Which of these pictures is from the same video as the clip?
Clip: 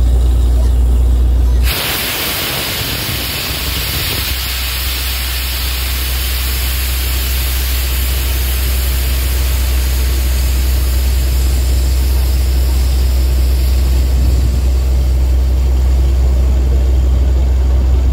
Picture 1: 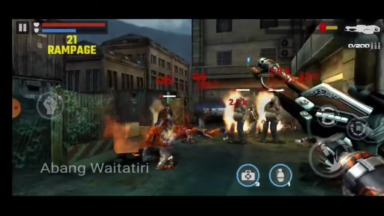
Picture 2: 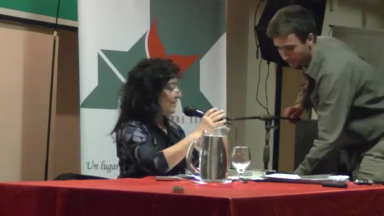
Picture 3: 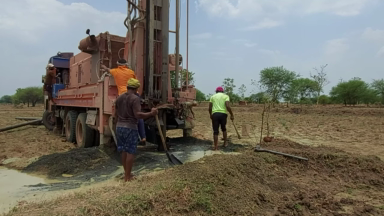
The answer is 3